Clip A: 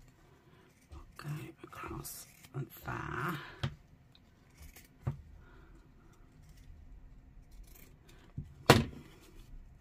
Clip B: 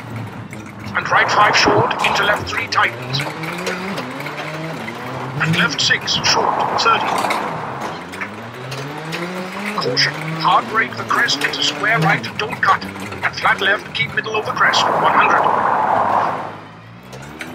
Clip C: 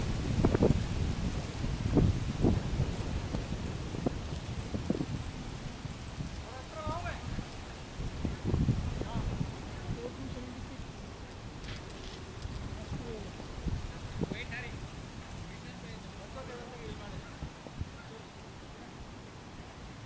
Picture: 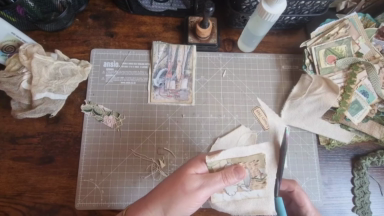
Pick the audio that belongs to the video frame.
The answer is A